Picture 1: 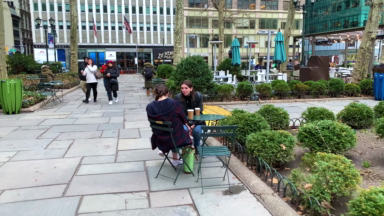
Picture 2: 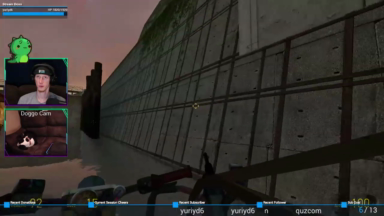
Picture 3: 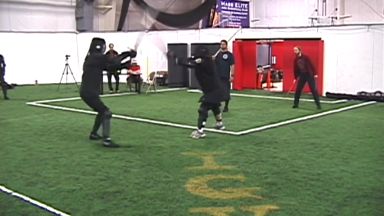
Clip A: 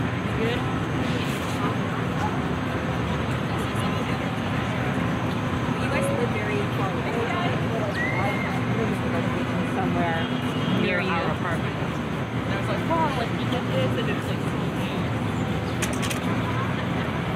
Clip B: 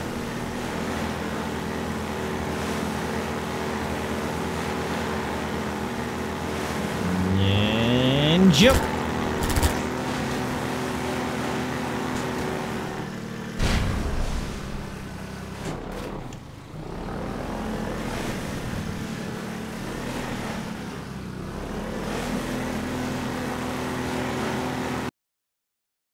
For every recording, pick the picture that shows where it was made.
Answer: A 1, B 2